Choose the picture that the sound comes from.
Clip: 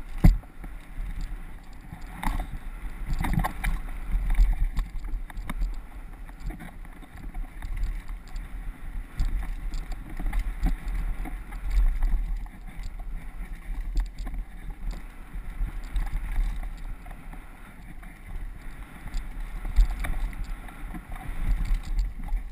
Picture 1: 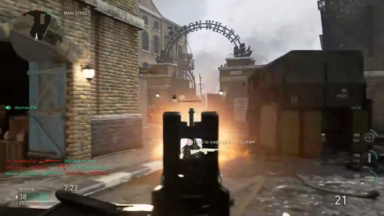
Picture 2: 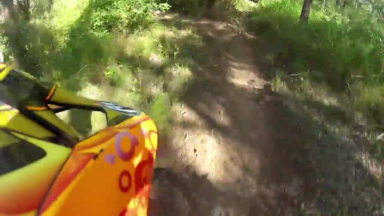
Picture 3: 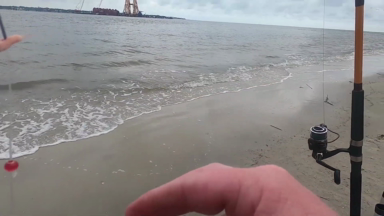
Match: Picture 2